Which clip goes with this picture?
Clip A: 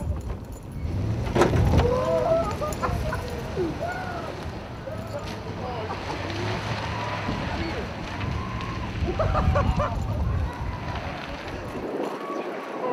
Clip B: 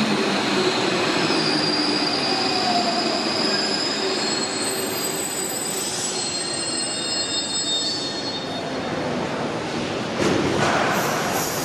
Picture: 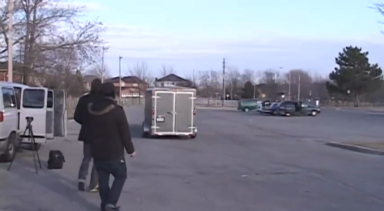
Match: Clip A